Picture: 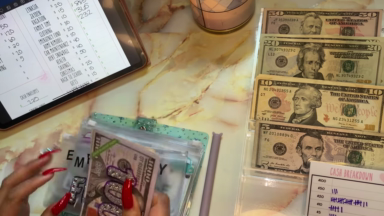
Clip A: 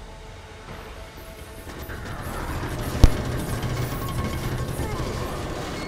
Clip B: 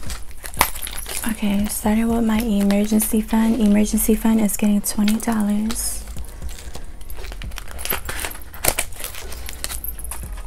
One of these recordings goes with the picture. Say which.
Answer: B